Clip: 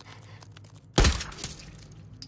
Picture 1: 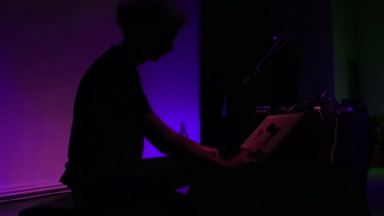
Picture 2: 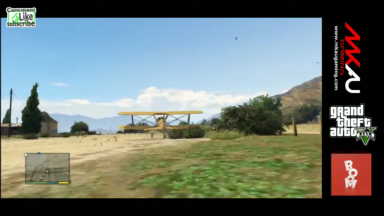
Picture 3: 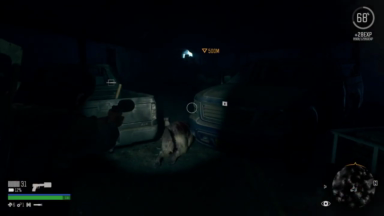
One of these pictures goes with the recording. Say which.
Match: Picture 3